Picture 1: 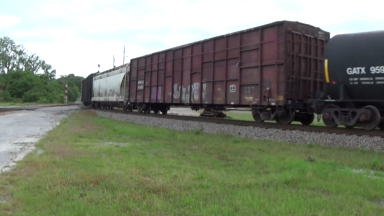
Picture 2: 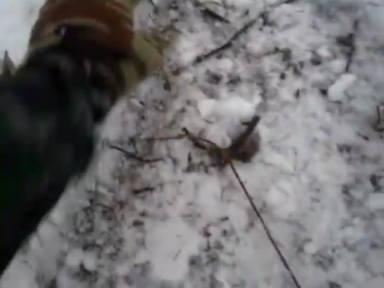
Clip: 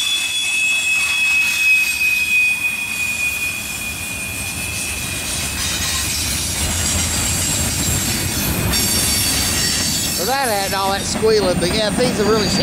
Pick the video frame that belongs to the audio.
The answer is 1